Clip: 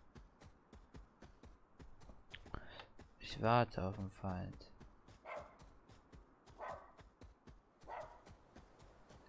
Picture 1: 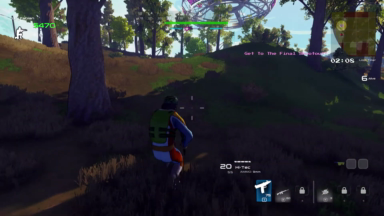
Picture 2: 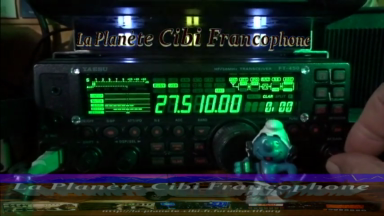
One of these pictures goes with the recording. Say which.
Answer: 1